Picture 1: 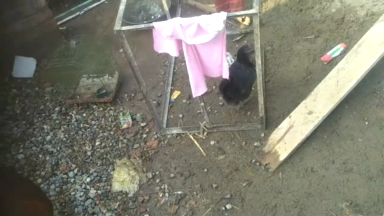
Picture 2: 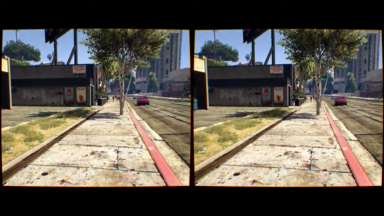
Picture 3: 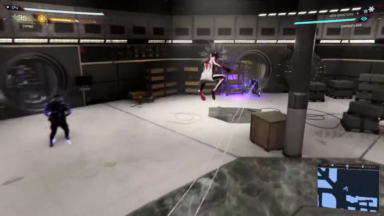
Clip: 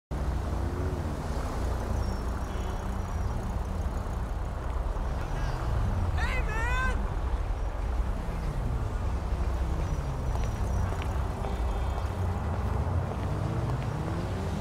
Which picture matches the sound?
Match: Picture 2